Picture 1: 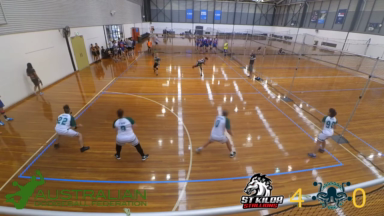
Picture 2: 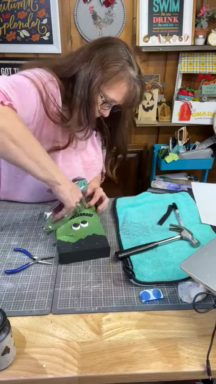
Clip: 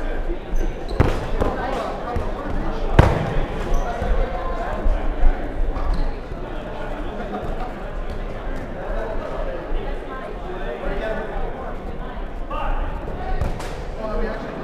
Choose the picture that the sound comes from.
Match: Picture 1